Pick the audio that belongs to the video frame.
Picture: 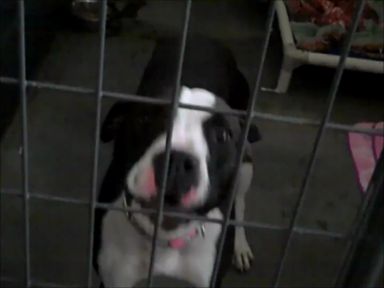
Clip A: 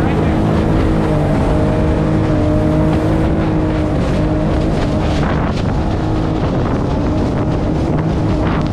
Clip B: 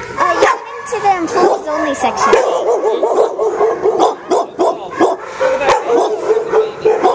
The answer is B